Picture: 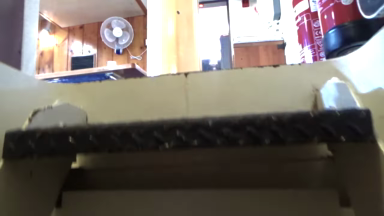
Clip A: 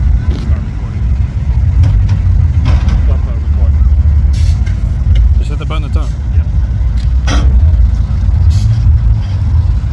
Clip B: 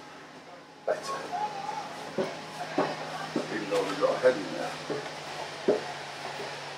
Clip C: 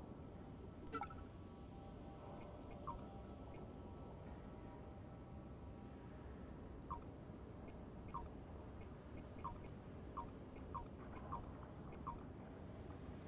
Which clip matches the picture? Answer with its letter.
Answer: B